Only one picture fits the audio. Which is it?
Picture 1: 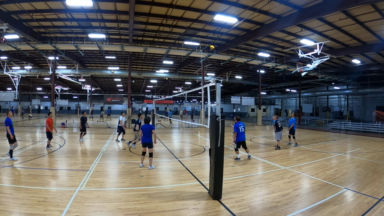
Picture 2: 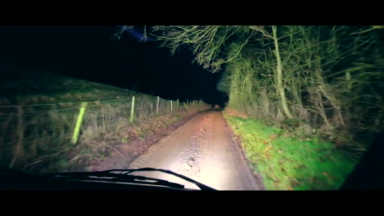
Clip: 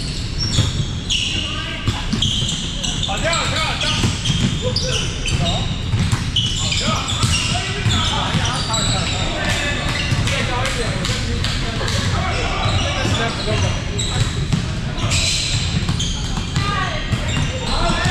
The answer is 1